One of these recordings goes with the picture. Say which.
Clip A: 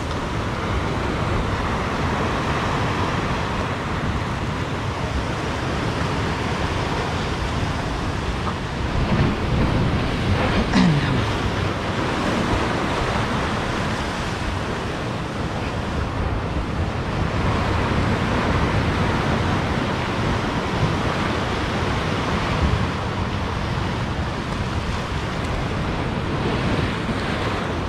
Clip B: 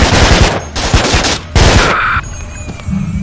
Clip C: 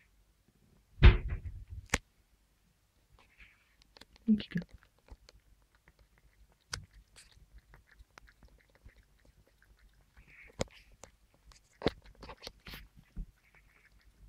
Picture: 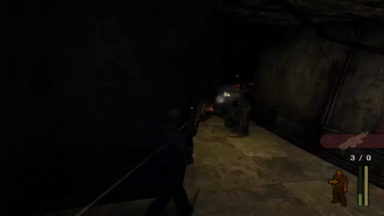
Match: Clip B